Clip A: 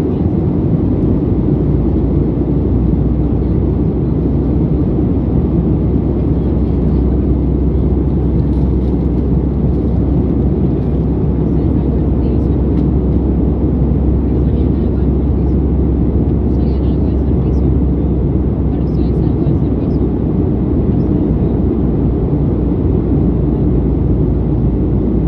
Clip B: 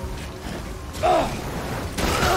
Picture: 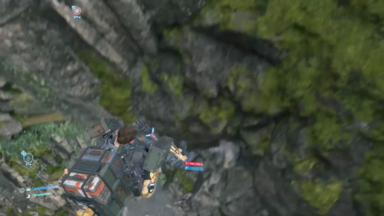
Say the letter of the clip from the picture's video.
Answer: B